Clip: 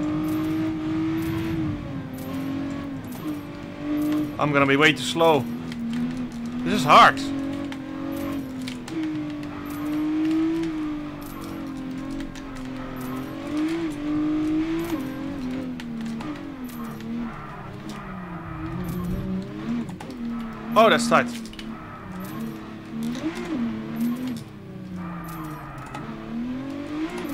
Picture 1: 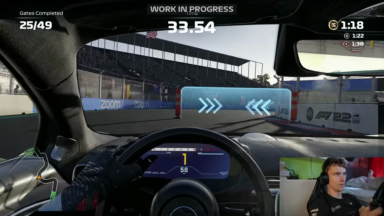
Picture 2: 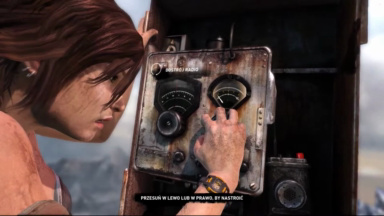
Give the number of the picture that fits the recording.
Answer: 1